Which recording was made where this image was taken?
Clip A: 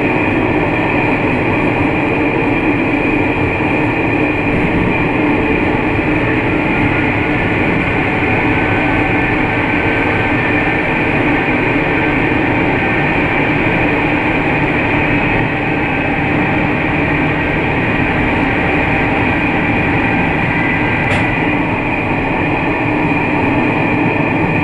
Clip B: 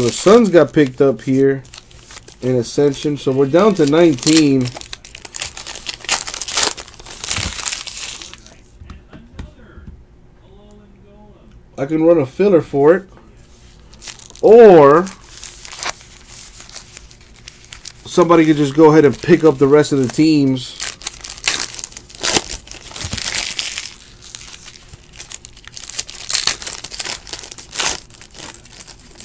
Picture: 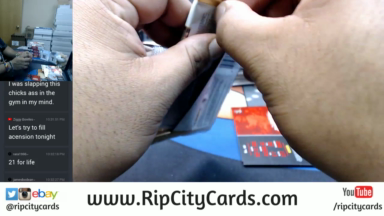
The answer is B